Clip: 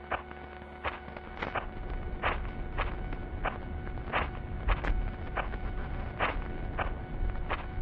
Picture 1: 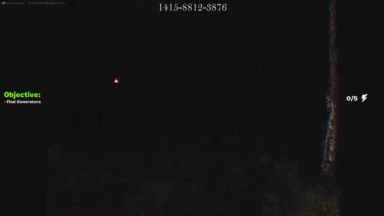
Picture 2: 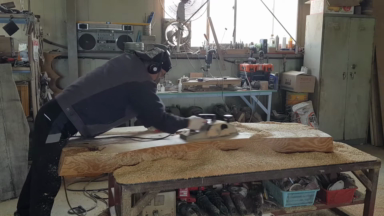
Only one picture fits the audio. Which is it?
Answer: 1